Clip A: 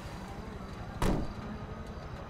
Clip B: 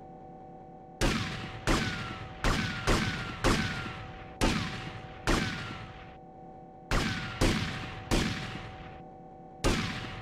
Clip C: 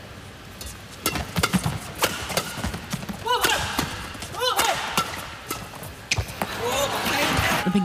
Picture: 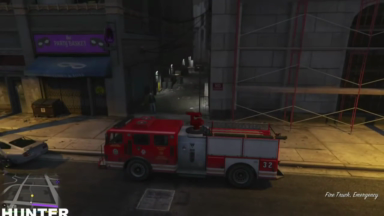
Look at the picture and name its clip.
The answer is A